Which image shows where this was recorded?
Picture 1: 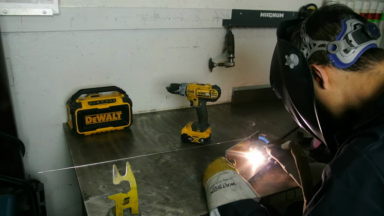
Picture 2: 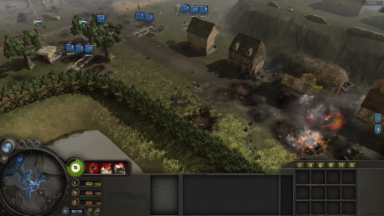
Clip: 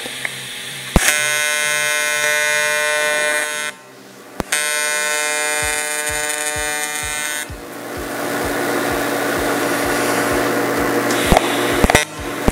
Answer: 1